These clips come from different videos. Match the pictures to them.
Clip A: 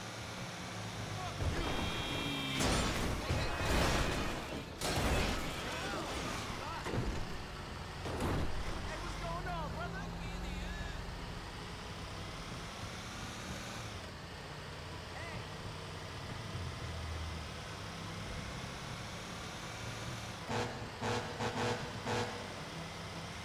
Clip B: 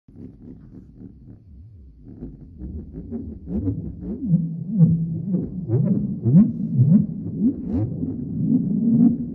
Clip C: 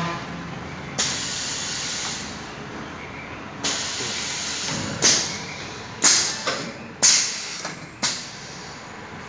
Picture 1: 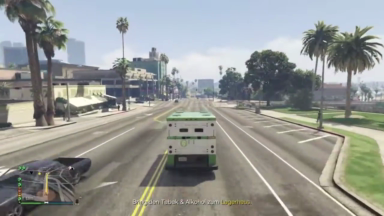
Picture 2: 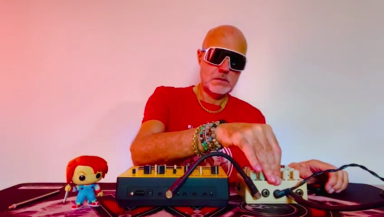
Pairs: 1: A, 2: B